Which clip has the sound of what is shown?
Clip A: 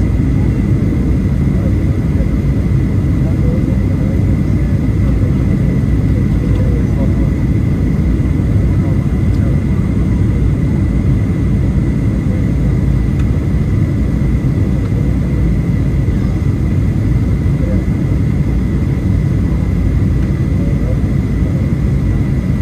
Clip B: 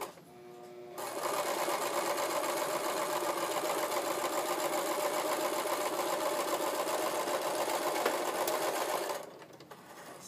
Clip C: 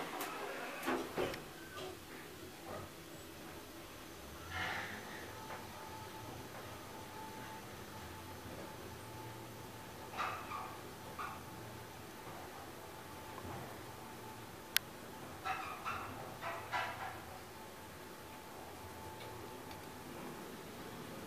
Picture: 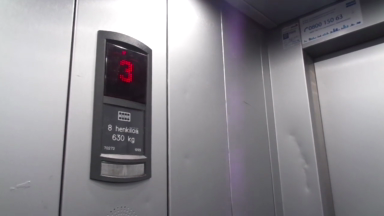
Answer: C